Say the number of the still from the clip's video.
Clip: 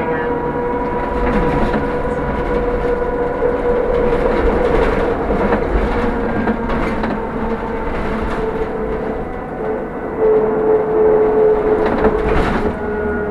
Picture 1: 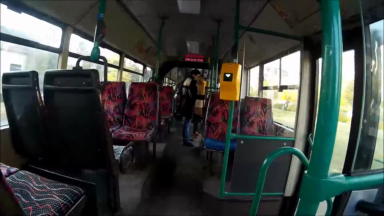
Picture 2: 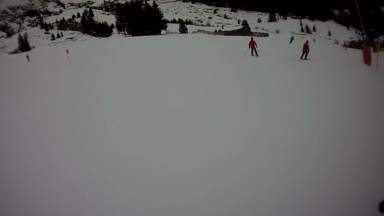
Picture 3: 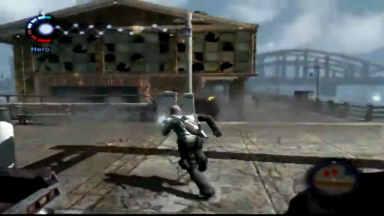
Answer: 1